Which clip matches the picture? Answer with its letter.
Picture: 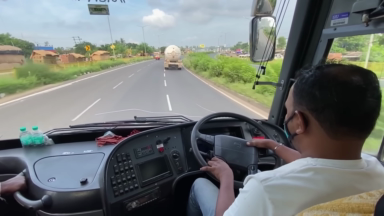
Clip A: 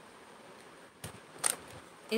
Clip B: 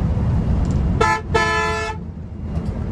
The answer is B